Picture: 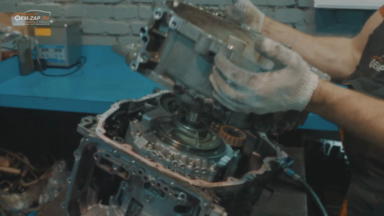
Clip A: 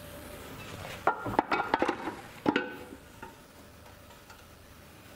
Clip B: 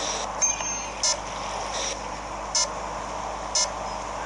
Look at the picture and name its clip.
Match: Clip A